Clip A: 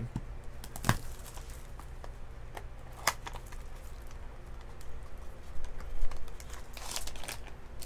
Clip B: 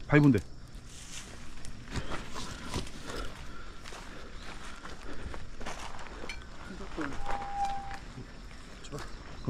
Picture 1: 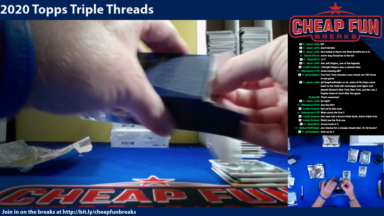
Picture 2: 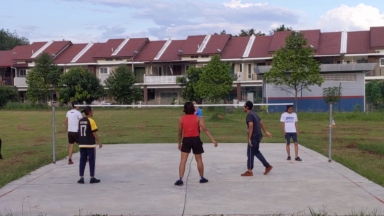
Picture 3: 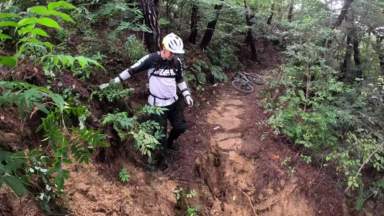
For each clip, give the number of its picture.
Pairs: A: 1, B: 3